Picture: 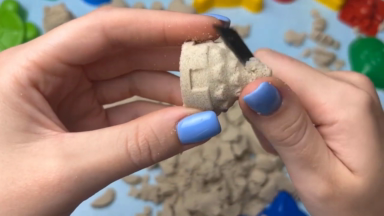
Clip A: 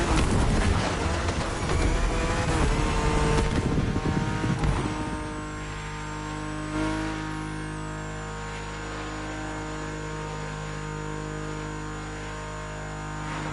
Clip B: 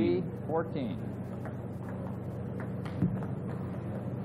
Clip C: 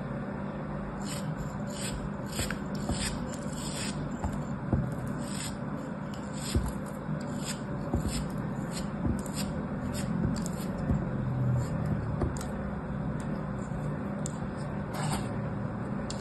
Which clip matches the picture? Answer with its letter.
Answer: C